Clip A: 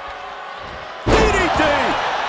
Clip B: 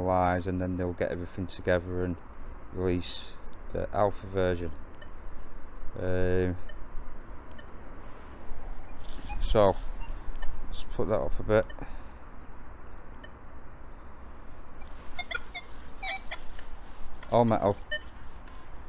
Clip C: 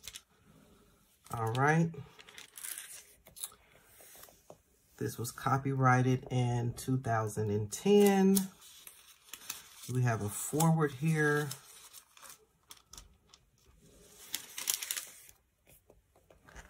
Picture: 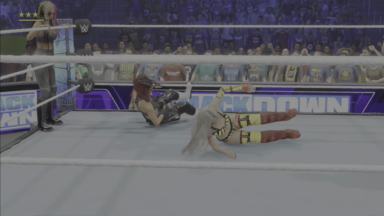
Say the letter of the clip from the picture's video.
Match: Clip A